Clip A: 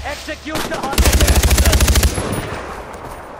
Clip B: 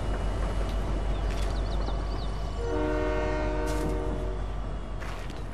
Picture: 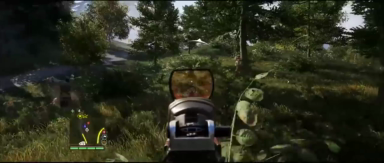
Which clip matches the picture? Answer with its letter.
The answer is A